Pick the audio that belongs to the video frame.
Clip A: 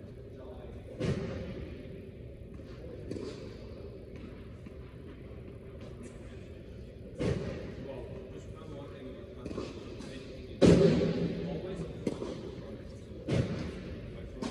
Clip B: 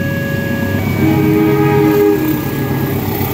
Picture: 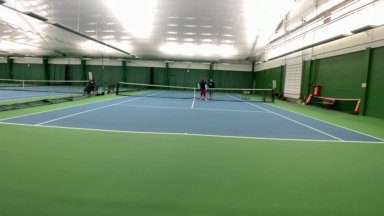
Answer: A